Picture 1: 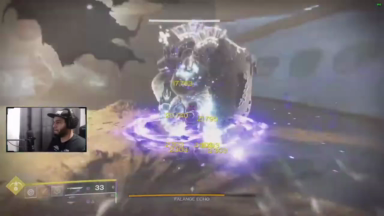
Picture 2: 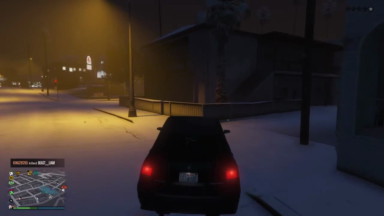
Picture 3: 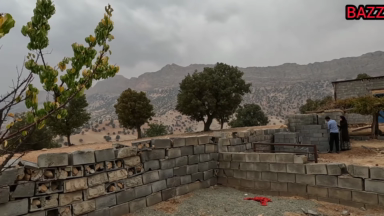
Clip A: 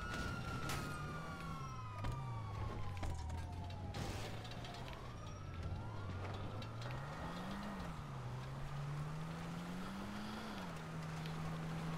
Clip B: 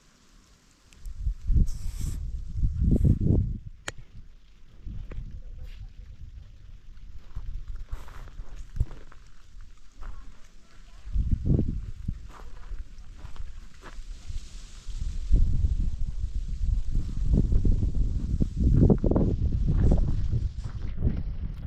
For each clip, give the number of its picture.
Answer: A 2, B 3